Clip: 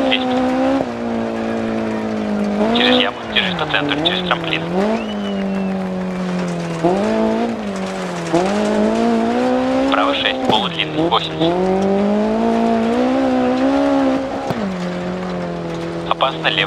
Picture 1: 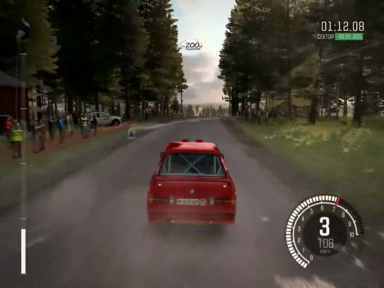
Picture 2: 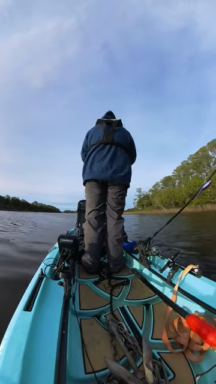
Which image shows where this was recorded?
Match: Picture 1